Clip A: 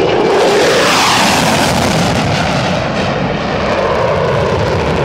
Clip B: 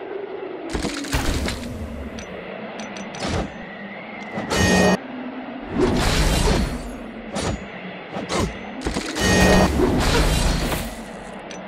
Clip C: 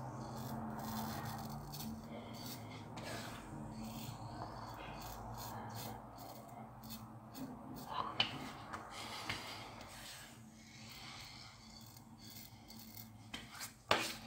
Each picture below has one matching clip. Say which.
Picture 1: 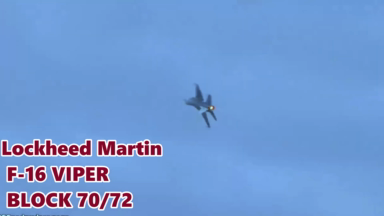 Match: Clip A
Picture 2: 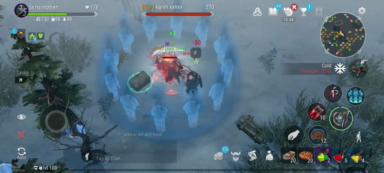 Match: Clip B